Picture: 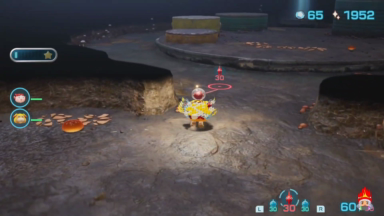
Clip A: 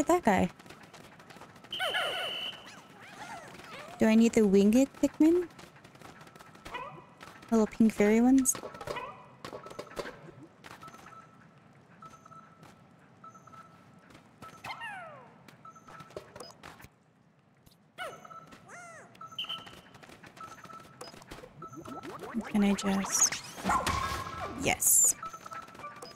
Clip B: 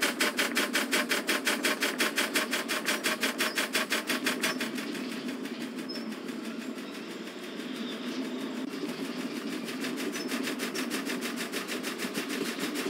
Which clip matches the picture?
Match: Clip A